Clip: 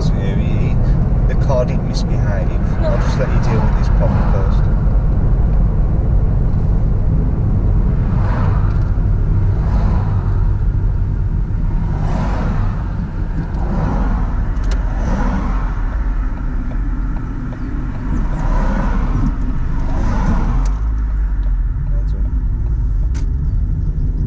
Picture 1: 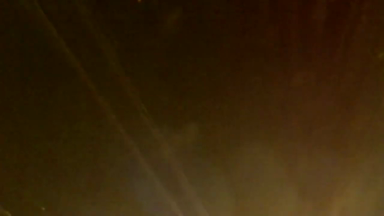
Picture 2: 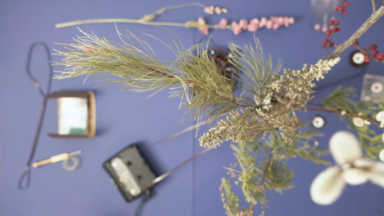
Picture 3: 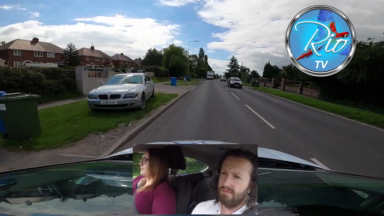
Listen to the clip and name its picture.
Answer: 3